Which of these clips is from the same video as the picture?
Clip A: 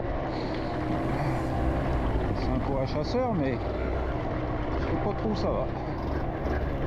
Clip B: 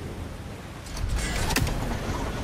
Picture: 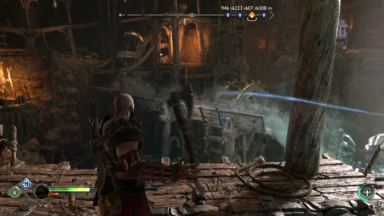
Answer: B